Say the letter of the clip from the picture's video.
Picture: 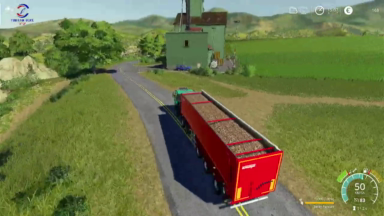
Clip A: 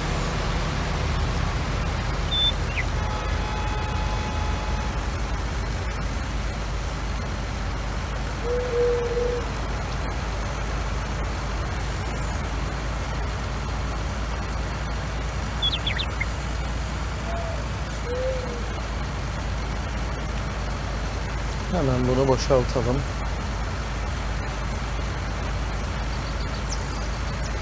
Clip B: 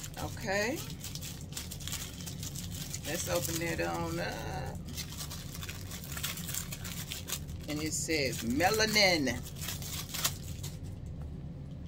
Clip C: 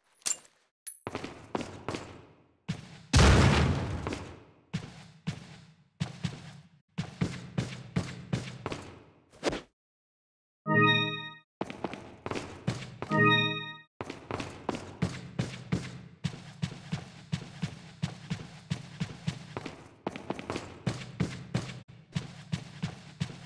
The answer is A